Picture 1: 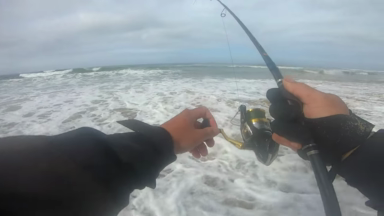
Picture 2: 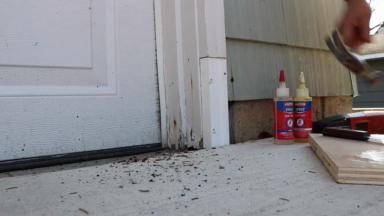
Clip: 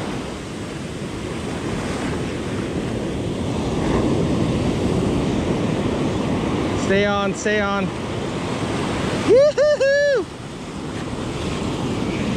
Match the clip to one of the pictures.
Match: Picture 1